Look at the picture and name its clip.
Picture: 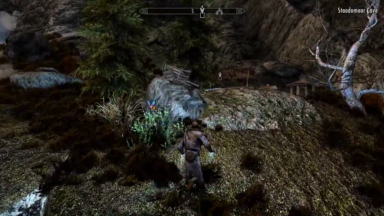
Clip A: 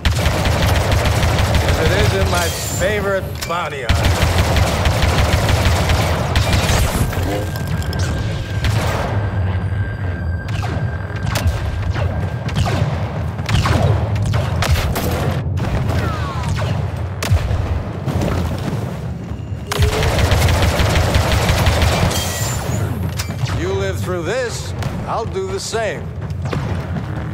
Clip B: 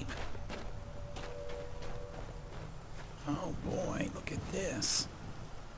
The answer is B